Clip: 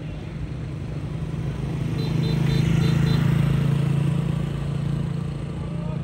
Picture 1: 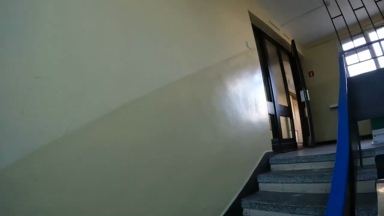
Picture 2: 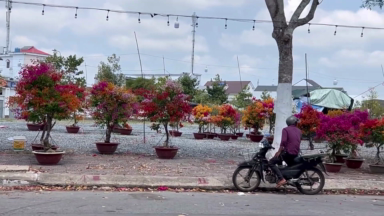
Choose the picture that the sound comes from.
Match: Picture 2